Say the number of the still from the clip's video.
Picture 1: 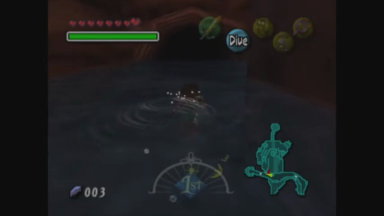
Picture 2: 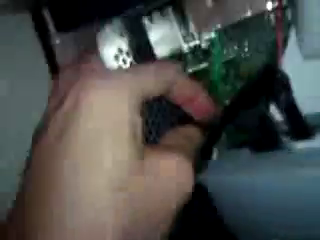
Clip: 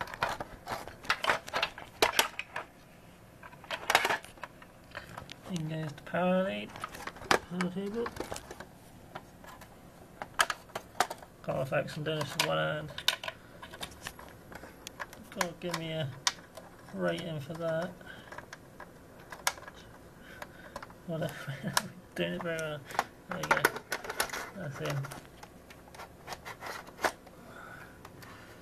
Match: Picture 2